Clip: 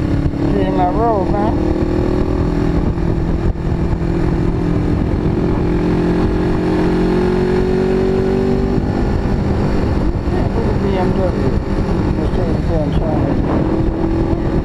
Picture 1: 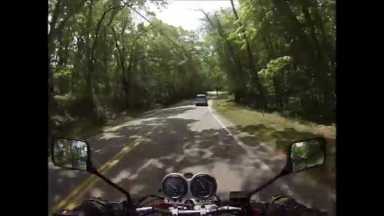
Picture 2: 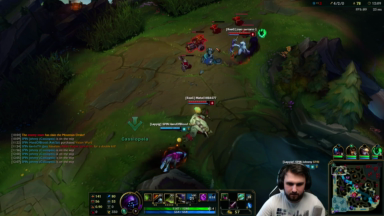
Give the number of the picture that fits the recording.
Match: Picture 1